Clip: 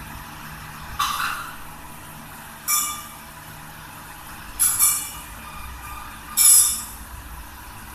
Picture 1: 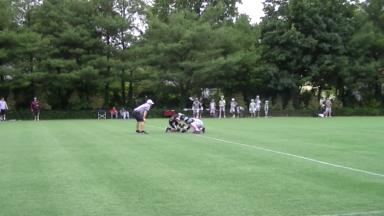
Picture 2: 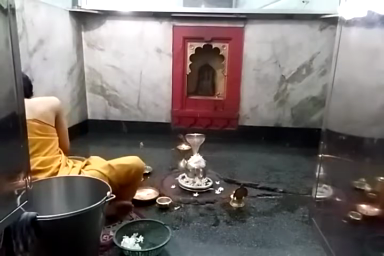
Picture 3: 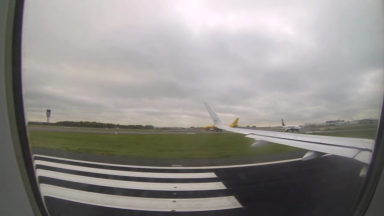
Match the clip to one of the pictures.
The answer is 2